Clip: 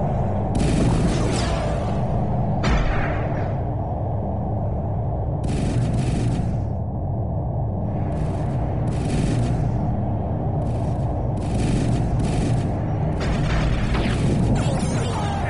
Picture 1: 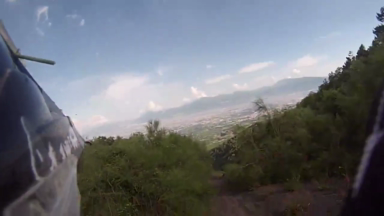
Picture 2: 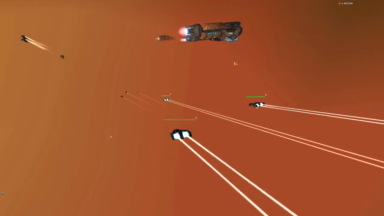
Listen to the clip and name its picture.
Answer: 2